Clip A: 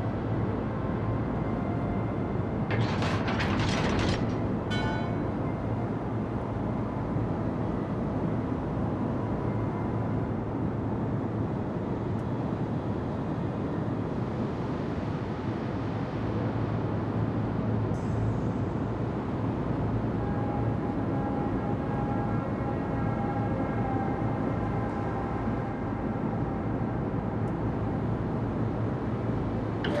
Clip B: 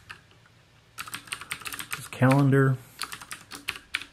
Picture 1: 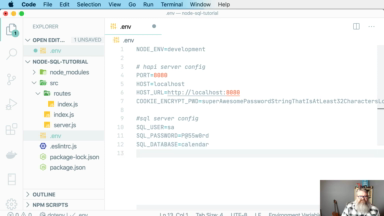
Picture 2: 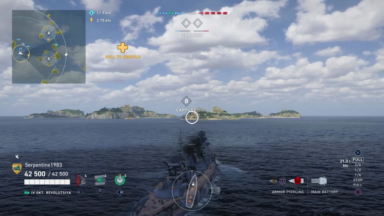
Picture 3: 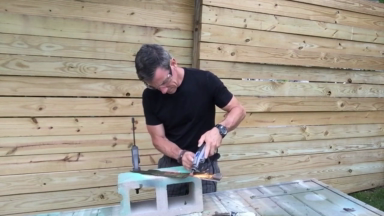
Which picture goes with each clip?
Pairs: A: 2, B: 1